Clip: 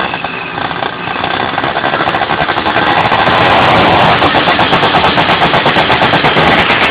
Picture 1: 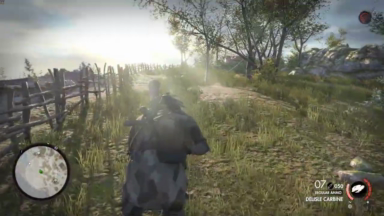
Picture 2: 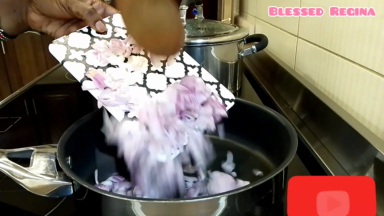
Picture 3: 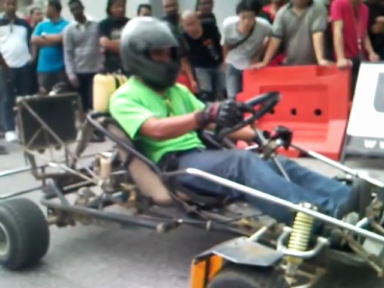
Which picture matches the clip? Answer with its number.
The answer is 3